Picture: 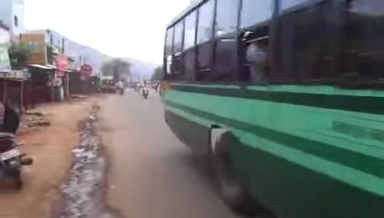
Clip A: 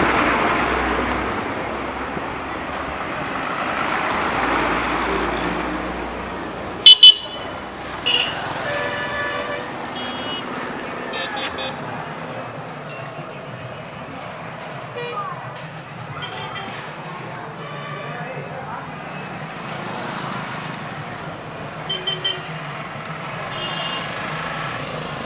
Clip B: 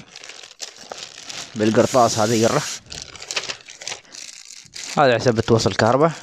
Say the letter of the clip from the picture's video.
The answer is A